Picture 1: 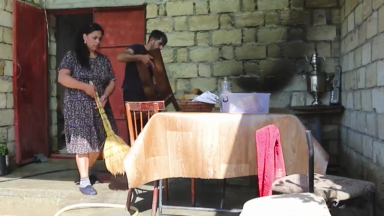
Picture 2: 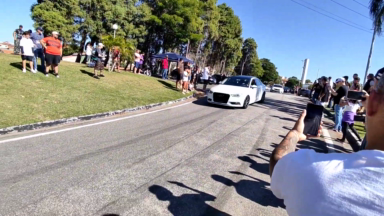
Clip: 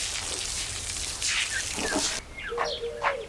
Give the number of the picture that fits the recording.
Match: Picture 1